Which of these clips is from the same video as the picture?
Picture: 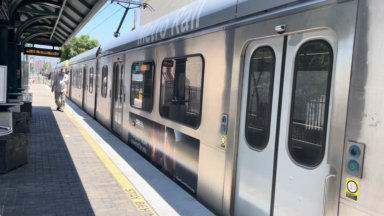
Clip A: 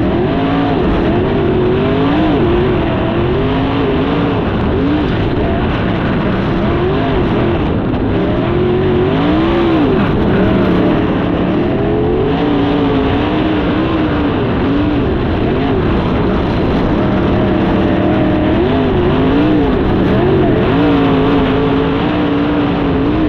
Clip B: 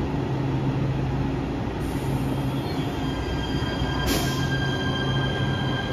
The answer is B